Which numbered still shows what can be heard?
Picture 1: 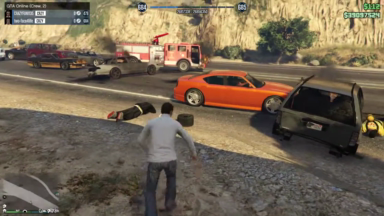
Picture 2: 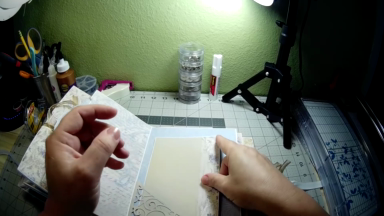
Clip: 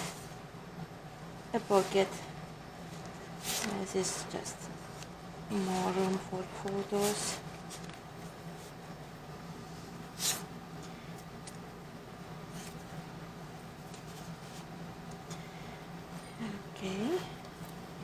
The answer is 2